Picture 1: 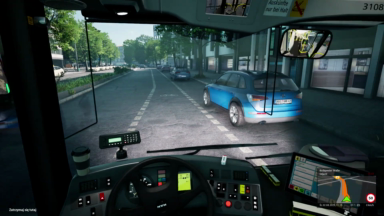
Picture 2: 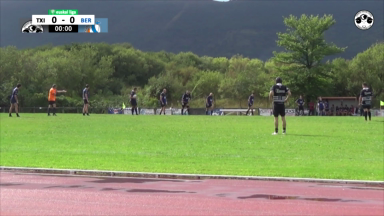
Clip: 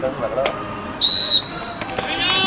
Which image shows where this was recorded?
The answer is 2